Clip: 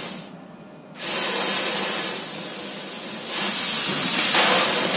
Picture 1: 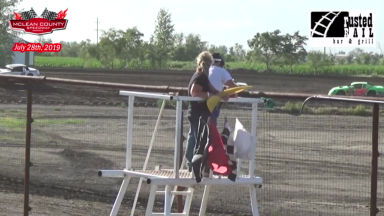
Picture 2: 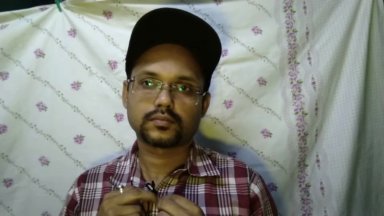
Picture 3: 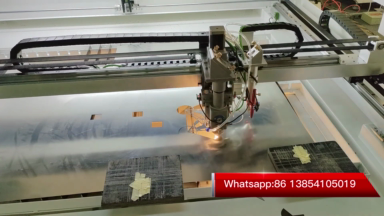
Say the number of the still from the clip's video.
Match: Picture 3